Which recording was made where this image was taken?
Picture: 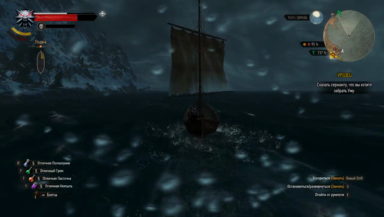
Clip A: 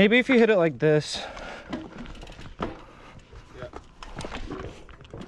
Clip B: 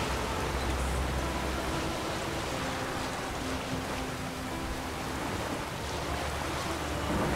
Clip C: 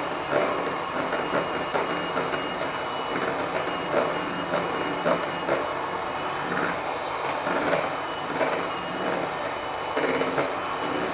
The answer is B